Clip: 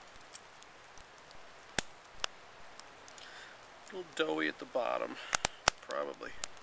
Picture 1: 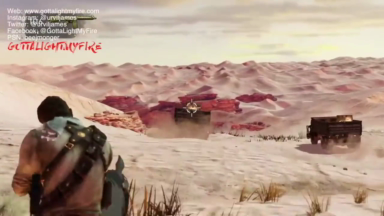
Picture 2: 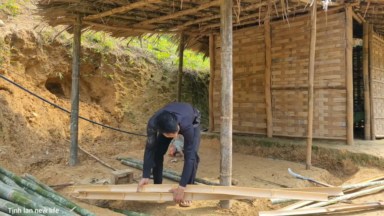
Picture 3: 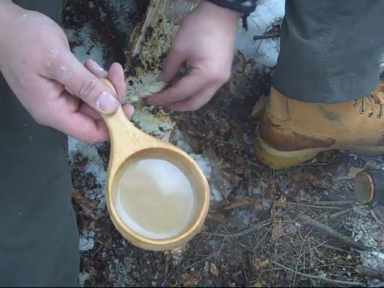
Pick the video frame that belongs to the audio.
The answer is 3